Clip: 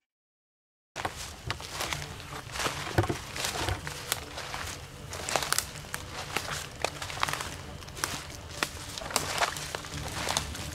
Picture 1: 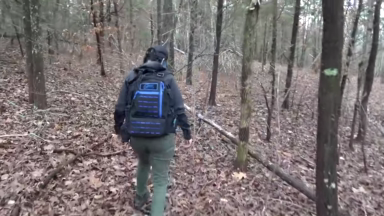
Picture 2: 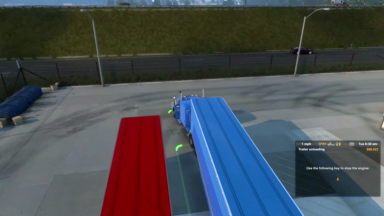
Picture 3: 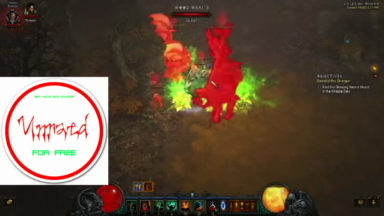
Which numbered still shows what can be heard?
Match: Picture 1